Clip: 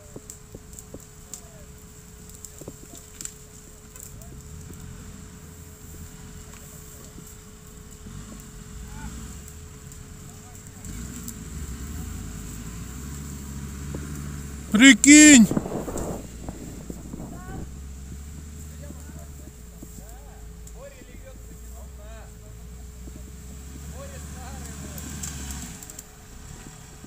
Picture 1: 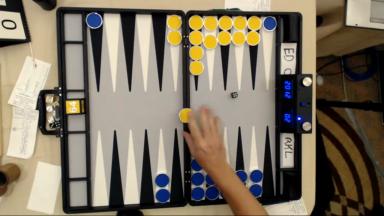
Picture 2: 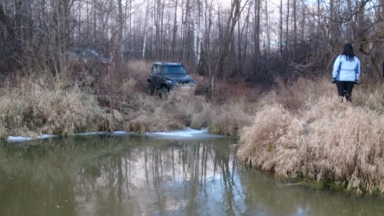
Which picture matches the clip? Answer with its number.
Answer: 2